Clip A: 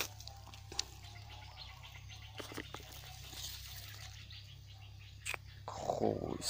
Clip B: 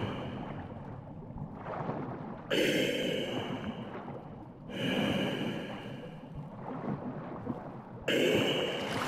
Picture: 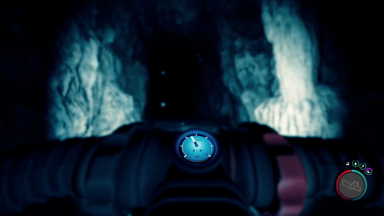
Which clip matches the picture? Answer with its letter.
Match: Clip B